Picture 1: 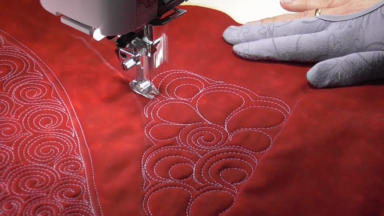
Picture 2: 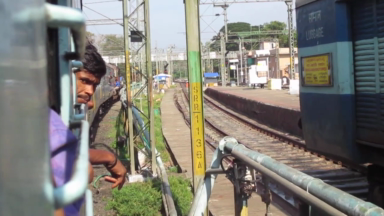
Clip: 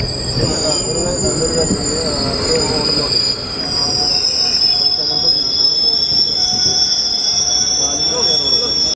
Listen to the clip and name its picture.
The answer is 2